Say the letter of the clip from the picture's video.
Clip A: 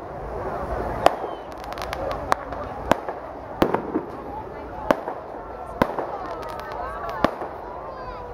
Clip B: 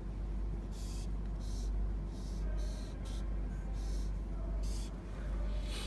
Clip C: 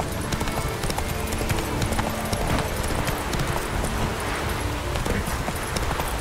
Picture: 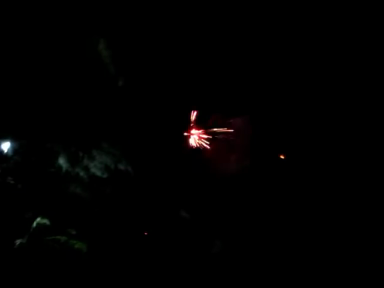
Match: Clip A